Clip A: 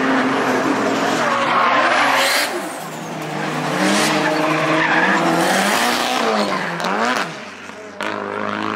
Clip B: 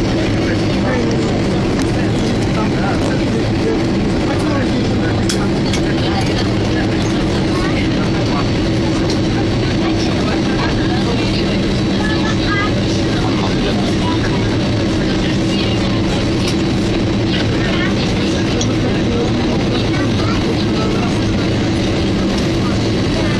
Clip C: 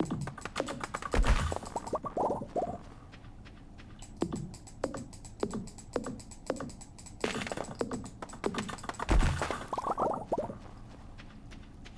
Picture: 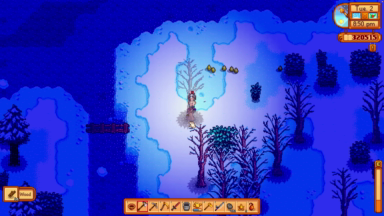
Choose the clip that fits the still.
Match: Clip C